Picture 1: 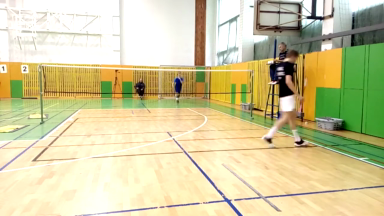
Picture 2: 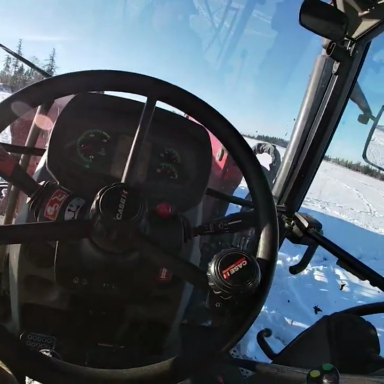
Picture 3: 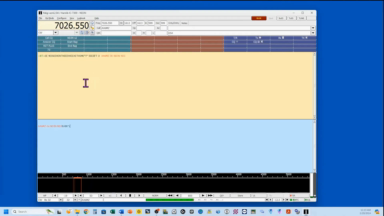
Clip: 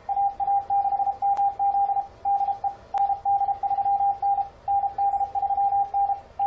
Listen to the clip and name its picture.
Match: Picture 3